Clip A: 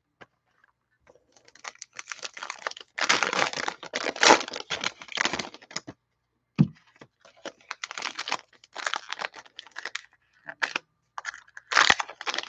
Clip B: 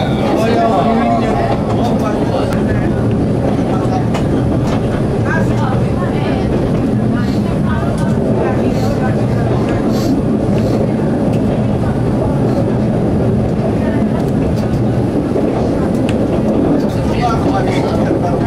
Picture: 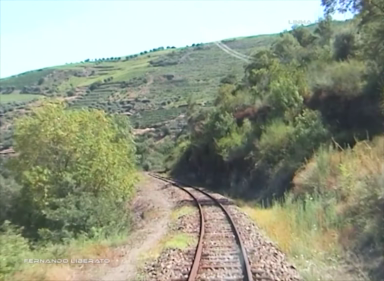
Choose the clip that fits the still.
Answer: B